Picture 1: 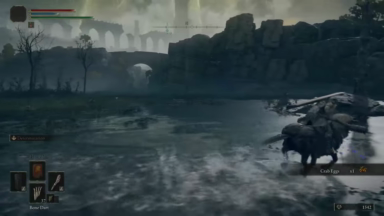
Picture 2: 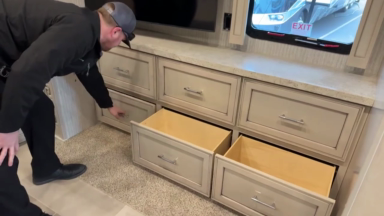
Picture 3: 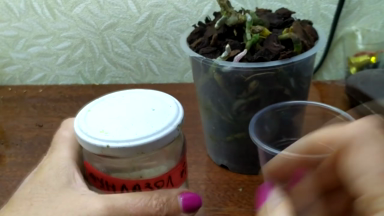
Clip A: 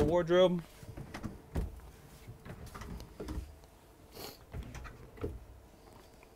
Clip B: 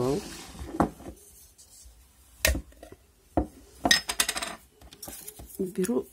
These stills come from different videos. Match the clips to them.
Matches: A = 2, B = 3